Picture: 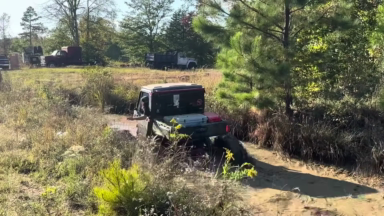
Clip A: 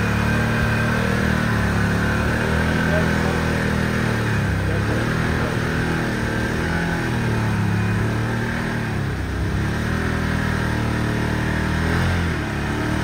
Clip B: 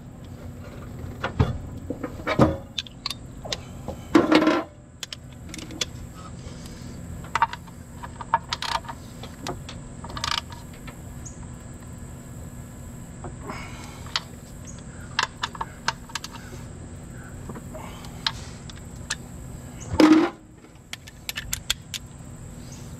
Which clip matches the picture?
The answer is A